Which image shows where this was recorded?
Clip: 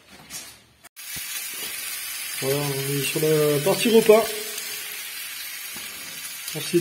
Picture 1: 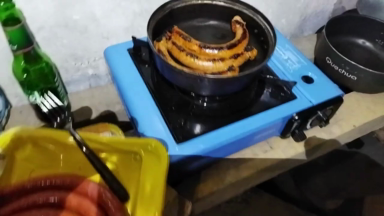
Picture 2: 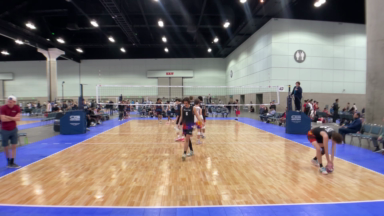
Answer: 1